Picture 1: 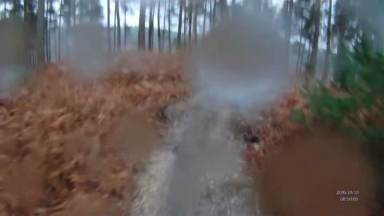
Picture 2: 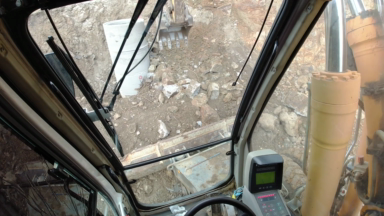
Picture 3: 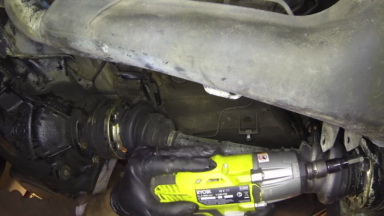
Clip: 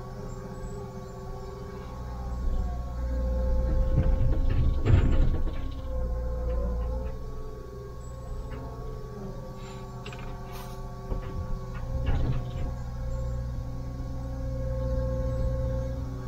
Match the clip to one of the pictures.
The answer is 2